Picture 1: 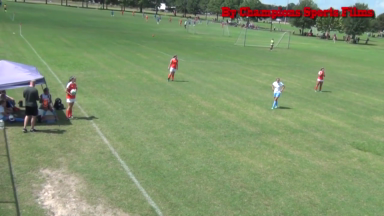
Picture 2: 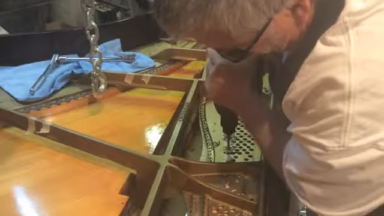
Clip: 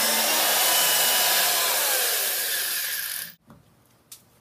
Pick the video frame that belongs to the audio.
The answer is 2